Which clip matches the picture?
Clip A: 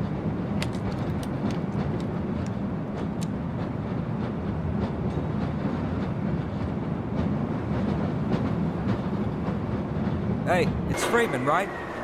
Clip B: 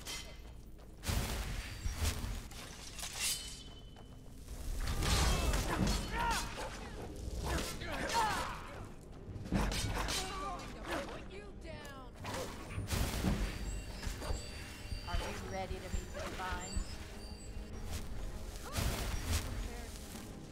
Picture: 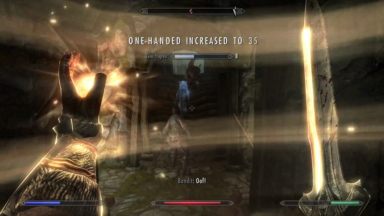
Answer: B